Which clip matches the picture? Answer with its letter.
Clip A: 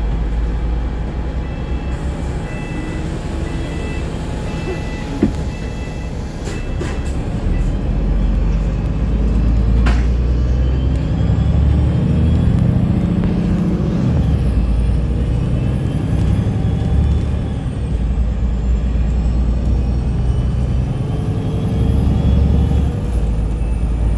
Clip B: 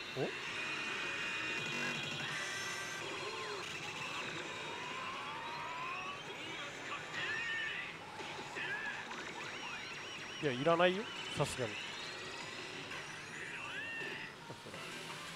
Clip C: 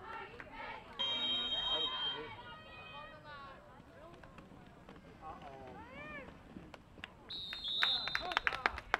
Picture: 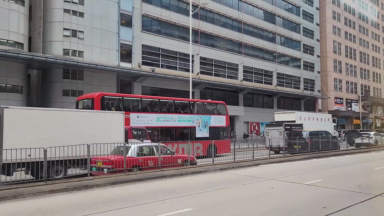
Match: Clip A